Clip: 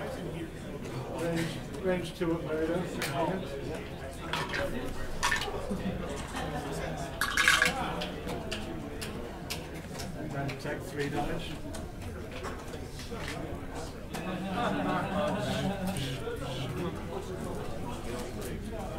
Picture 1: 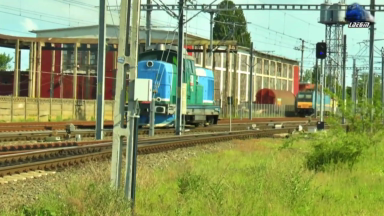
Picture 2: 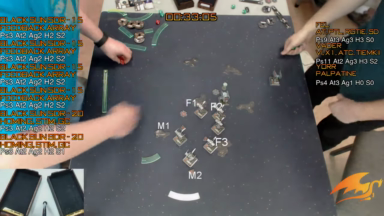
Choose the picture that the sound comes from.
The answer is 2